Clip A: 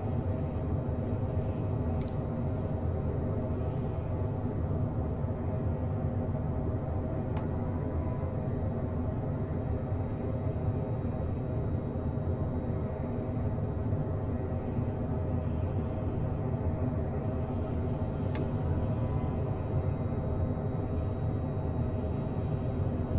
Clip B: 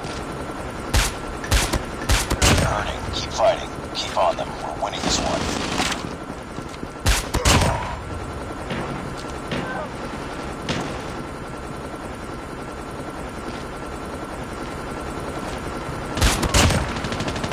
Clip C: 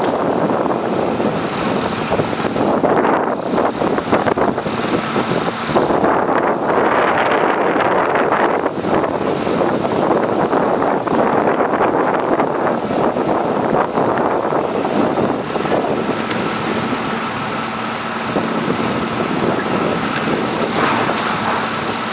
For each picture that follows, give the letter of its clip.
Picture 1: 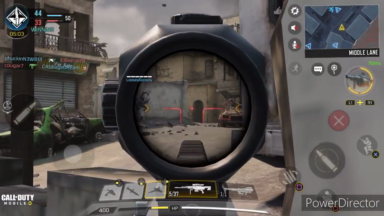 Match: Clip B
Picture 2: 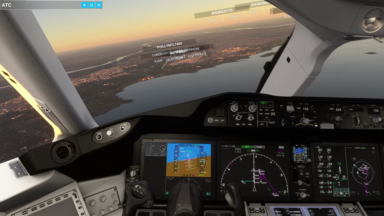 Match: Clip A